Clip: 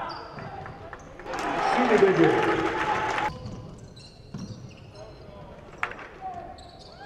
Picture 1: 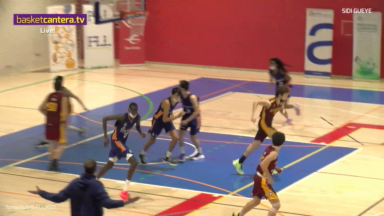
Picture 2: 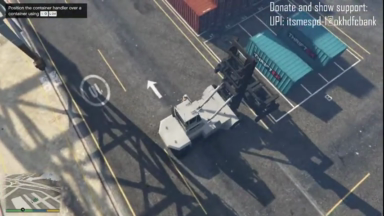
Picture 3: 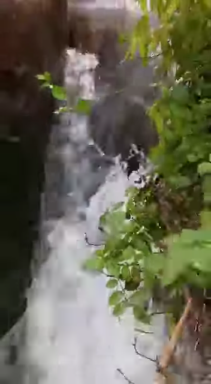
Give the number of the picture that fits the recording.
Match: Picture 1